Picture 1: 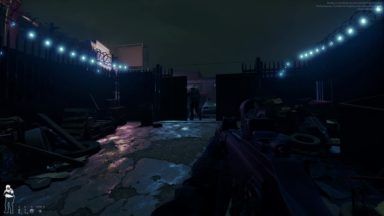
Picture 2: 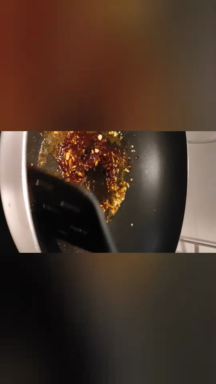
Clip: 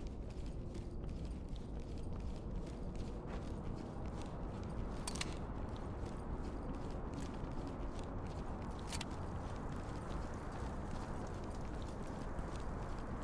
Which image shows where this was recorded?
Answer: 1